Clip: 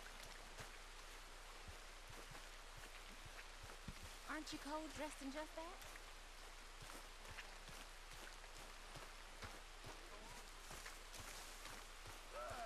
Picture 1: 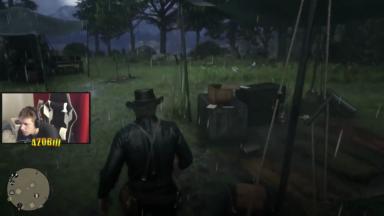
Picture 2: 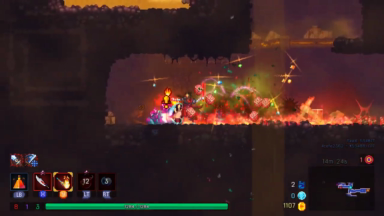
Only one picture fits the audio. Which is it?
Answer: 1